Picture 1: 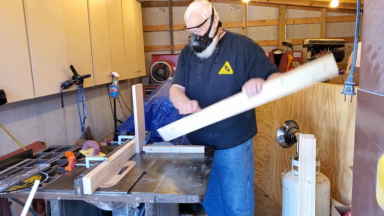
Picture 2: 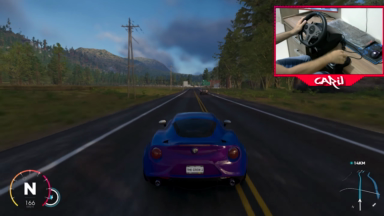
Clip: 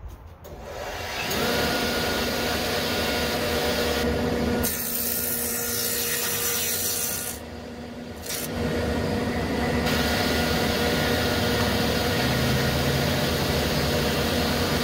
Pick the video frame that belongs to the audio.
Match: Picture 1